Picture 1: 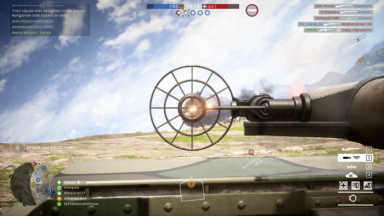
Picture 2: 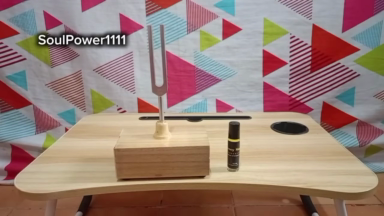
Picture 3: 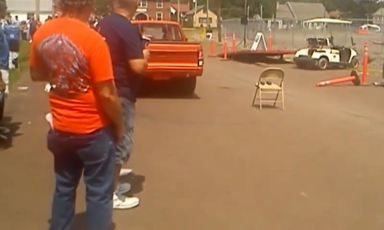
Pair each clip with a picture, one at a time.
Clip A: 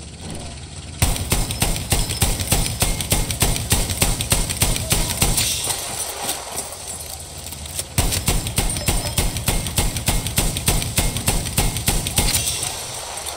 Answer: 1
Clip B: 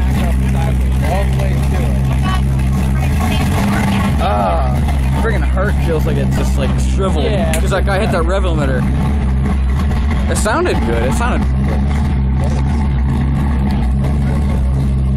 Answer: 3